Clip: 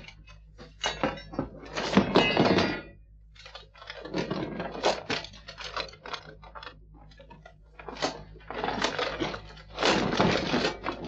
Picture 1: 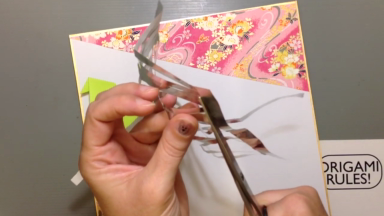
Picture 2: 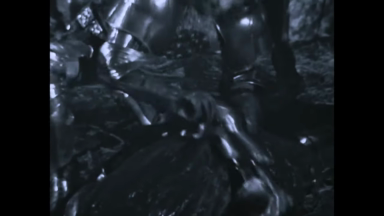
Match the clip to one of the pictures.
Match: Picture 2